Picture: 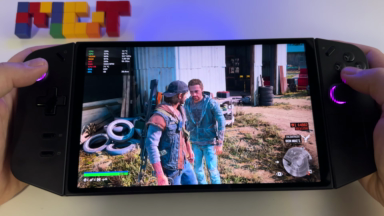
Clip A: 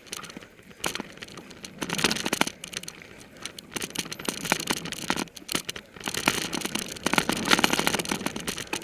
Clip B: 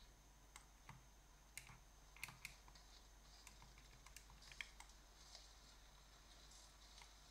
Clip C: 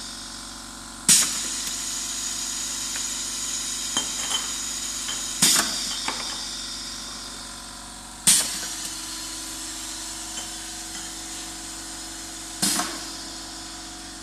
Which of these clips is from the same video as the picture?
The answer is B